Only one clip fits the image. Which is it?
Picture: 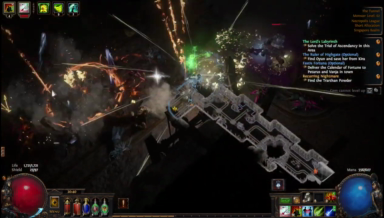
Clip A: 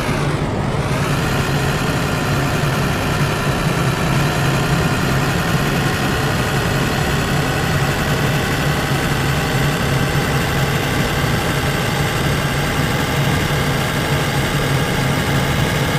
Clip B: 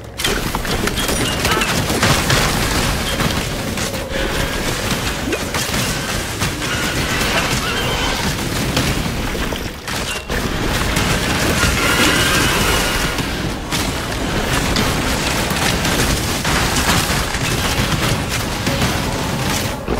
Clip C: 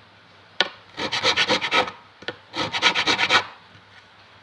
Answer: B